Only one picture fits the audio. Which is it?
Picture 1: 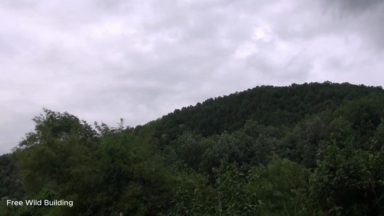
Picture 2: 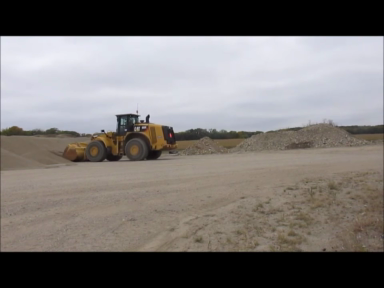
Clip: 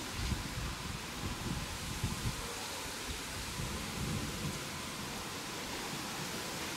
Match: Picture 1